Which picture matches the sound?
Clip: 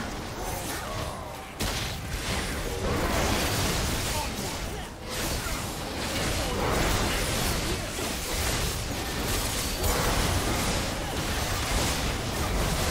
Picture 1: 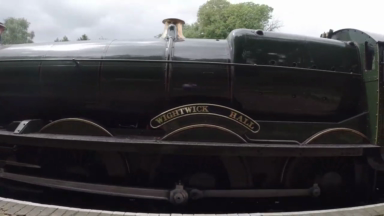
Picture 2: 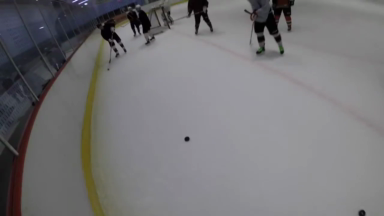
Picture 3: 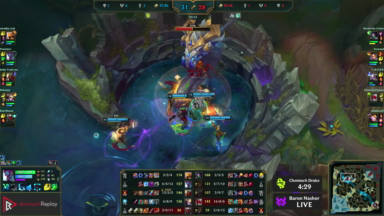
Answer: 3